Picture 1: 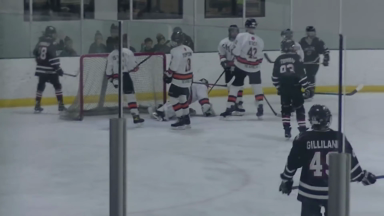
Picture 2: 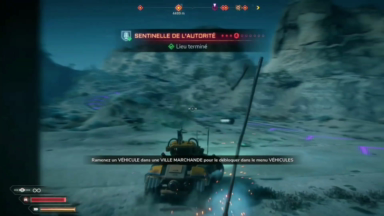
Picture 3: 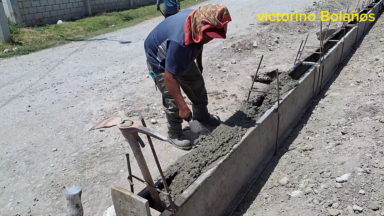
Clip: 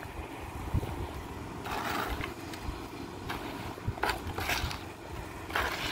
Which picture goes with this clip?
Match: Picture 3